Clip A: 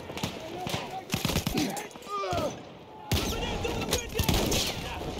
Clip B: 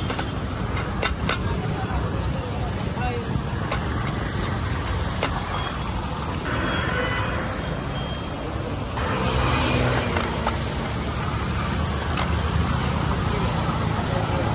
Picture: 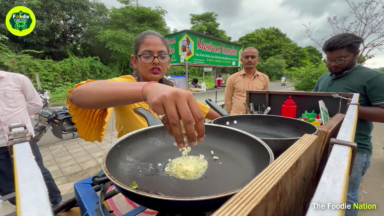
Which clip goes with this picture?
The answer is B